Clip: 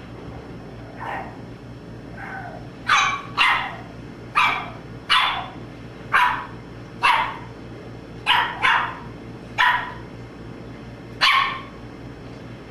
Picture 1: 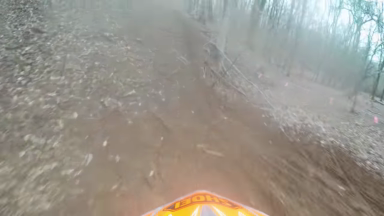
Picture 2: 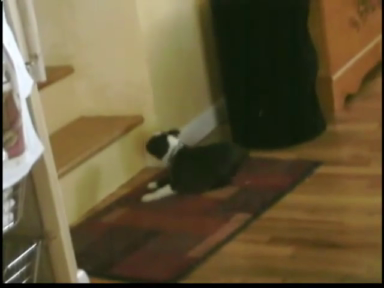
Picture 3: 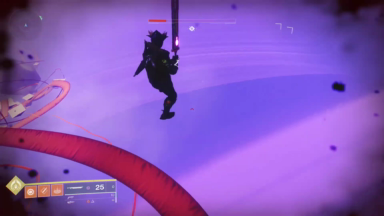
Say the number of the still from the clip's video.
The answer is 2